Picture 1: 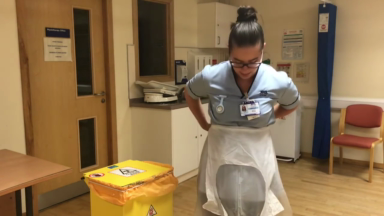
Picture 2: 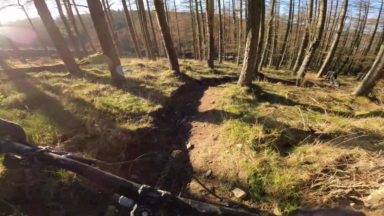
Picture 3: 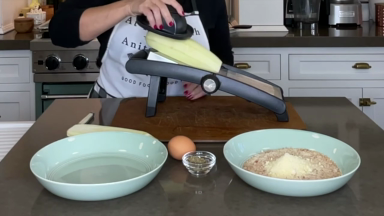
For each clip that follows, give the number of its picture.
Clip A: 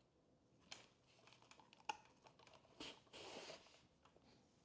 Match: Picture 3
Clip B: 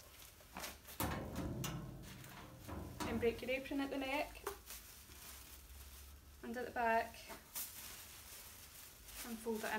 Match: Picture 1